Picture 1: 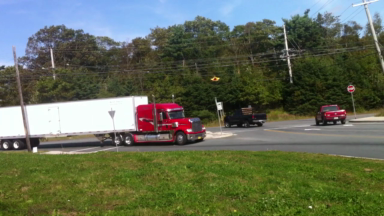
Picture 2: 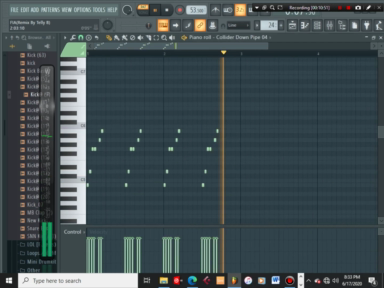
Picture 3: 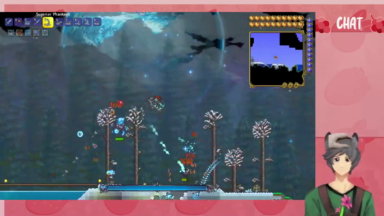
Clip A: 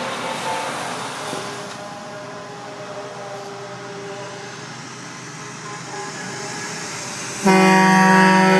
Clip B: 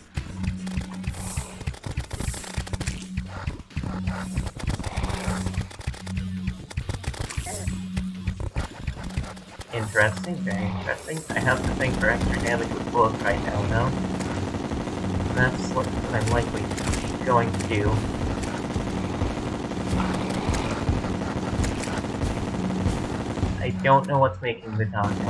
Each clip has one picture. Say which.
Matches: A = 1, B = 3